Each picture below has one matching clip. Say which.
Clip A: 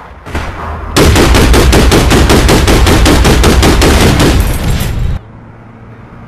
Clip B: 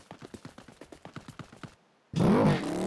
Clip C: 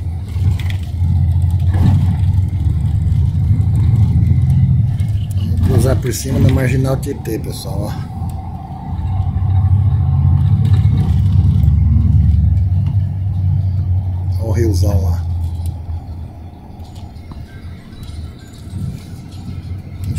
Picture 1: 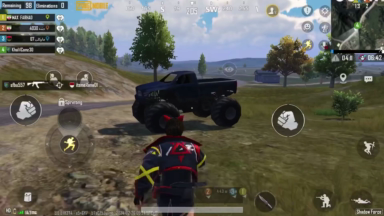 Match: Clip B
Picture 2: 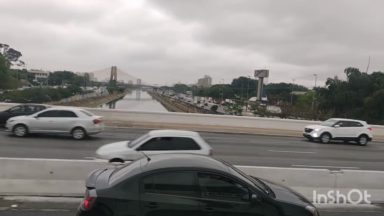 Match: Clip C